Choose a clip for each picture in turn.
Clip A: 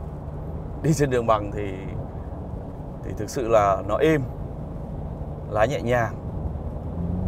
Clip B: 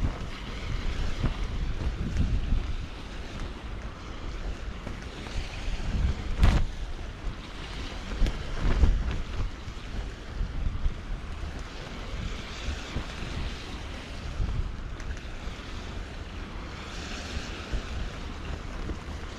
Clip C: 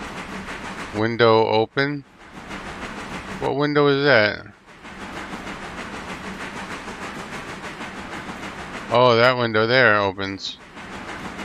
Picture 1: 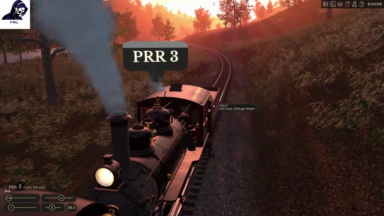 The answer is C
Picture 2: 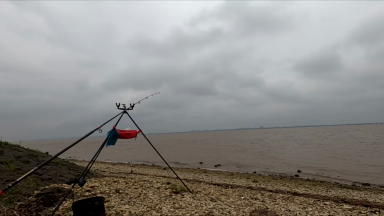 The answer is B